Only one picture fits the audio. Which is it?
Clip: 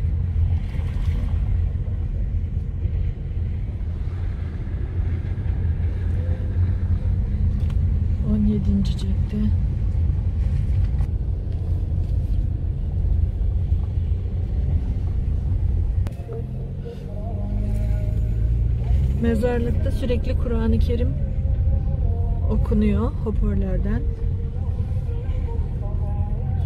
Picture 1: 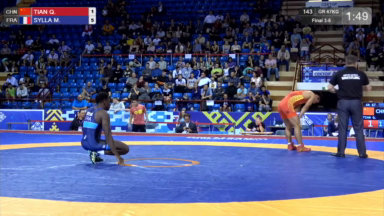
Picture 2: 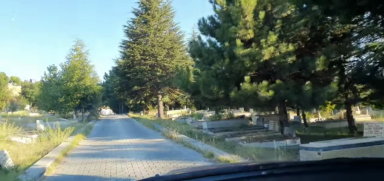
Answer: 2